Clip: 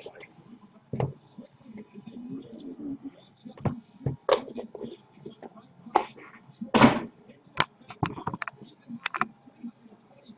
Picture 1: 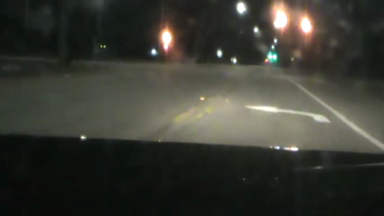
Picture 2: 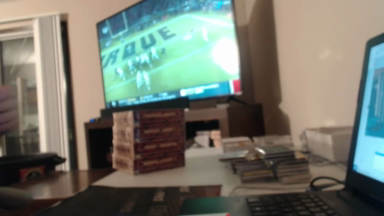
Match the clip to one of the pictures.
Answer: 2